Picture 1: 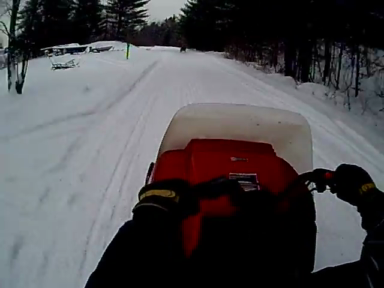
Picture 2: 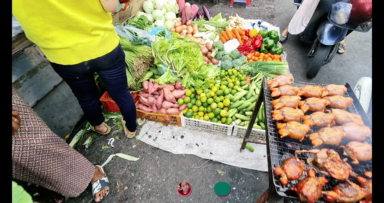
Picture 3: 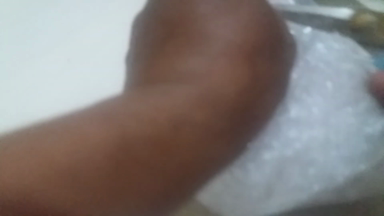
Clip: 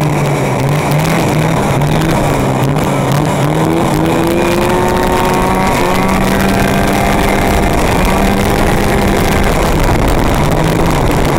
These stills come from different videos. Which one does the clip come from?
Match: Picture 1